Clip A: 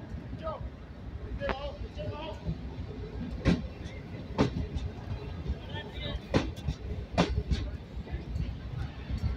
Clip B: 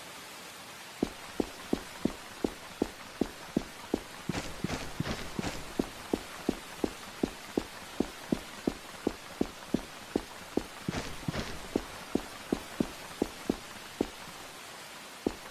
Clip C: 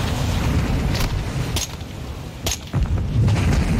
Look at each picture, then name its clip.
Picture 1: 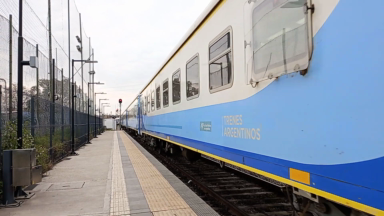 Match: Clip A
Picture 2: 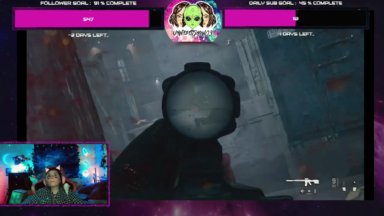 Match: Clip C